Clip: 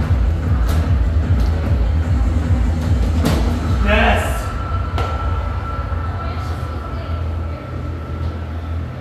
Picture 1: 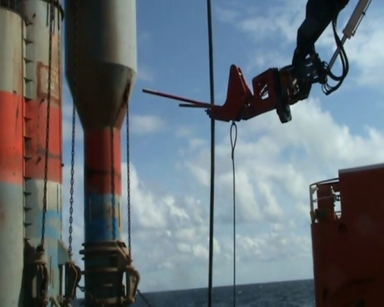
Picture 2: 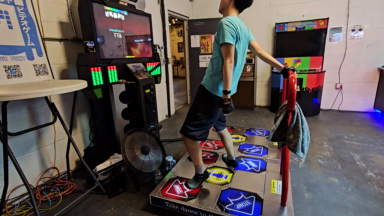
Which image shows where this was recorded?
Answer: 2